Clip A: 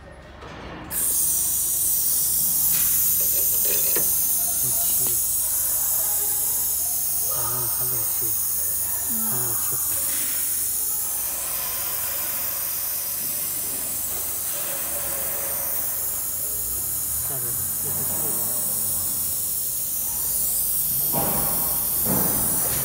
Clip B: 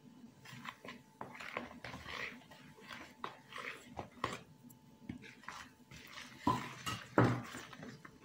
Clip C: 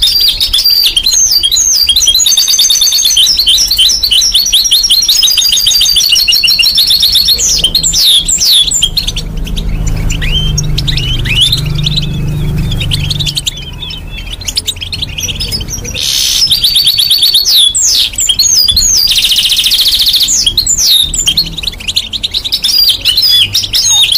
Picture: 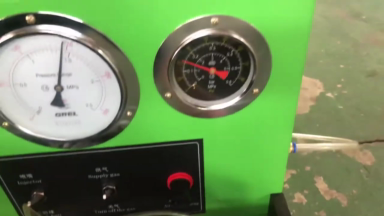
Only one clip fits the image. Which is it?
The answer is A